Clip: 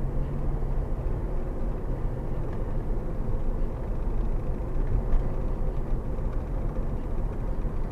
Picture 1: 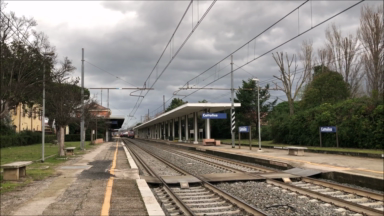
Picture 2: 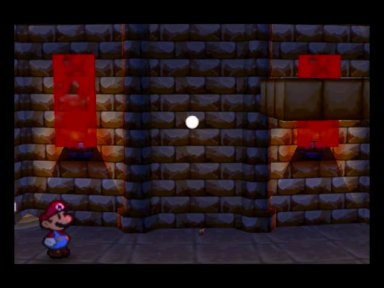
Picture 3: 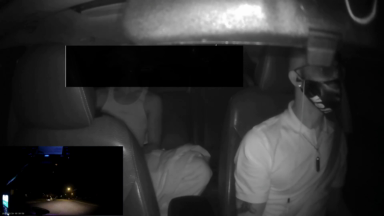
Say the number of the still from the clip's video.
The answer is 3